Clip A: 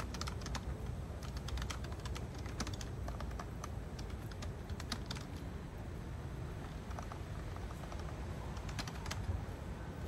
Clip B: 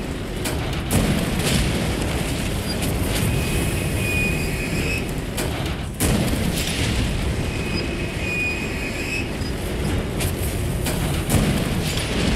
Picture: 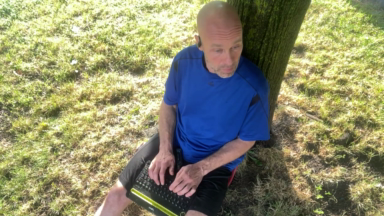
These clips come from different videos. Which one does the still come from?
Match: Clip A